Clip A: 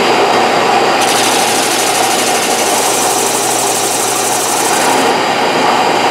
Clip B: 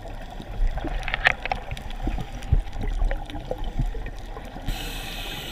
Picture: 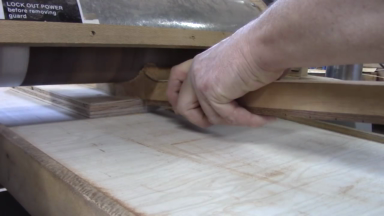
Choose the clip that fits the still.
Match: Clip A